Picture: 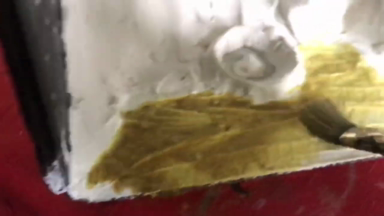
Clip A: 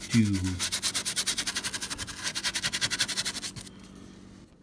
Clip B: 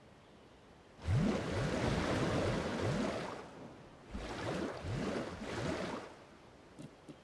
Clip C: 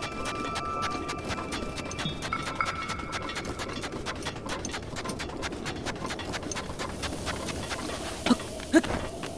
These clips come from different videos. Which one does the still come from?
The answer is A